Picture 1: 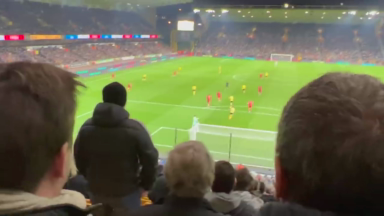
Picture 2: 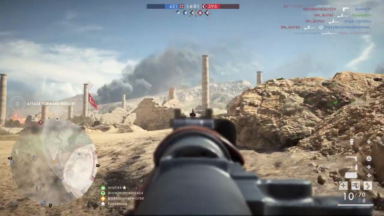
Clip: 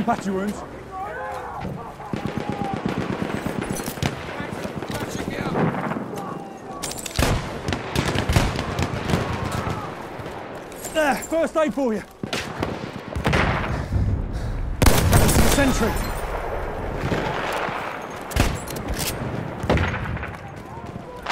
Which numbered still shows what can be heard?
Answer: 2